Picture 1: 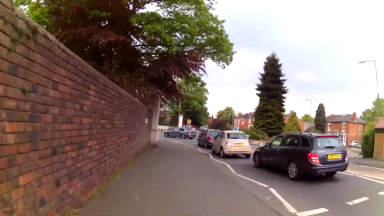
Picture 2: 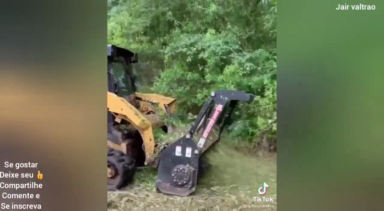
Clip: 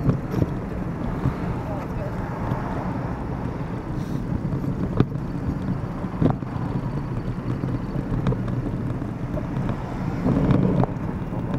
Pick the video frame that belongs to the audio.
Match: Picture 1